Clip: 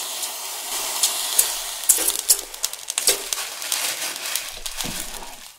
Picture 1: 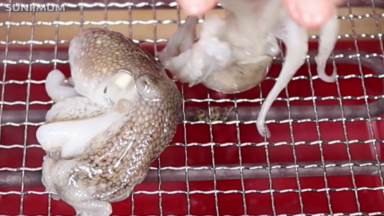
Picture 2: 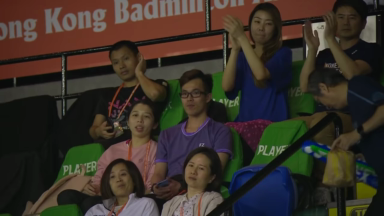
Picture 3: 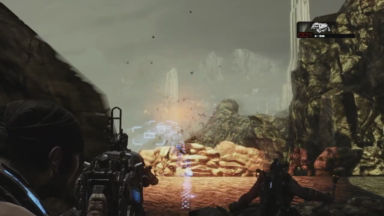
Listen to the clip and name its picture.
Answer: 1